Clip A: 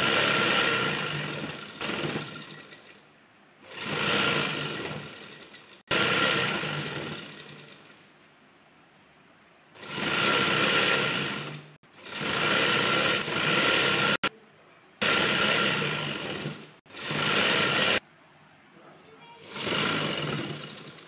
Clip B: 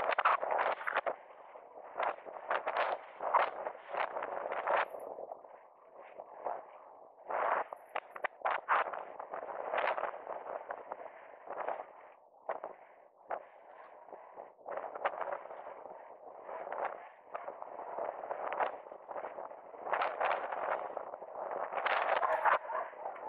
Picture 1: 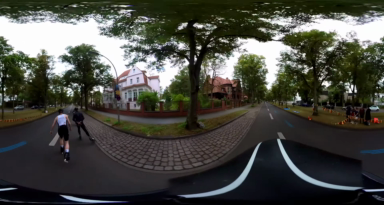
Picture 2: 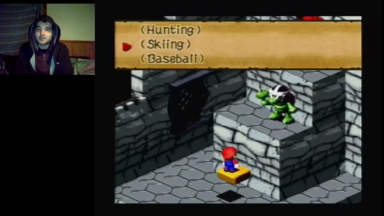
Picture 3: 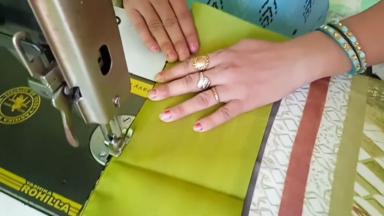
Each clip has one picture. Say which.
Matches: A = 3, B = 1